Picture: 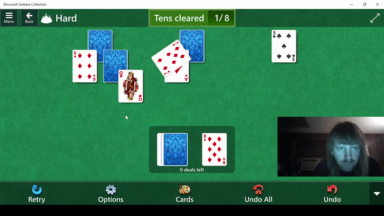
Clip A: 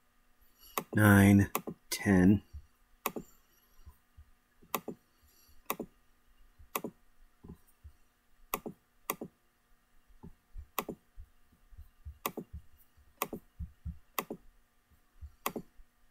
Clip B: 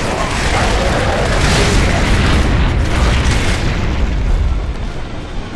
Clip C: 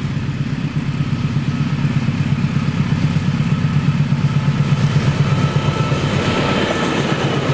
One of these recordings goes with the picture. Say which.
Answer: A